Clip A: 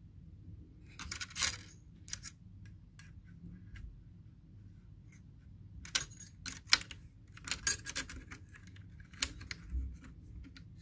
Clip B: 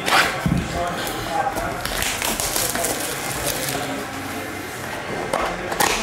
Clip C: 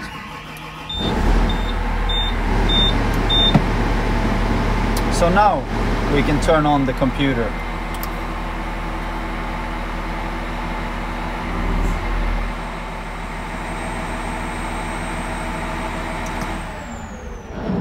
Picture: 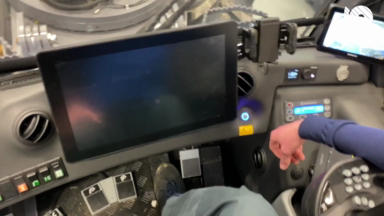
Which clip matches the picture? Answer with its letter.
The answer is C